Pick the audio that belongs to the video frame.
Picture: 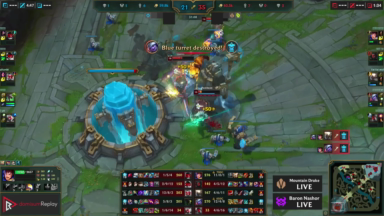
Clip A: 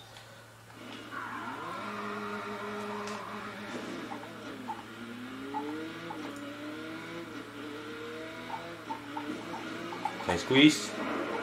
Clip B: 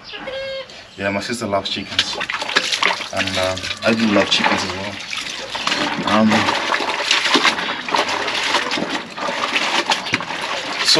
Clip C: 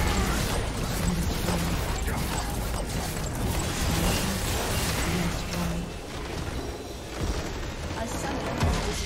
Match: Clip C